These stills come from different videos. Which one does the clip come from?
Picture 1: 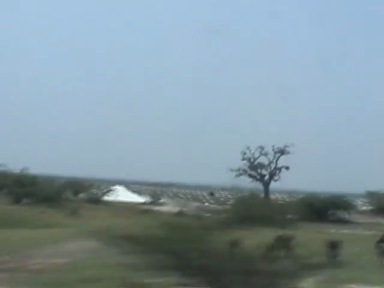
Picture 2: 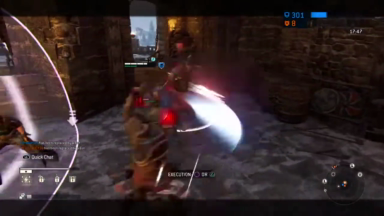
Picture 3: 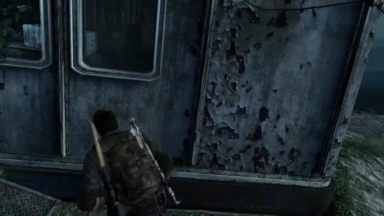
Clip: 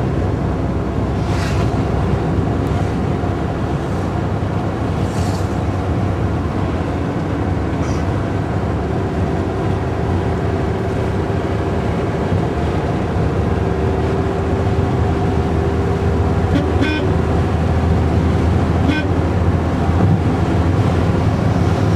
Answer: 1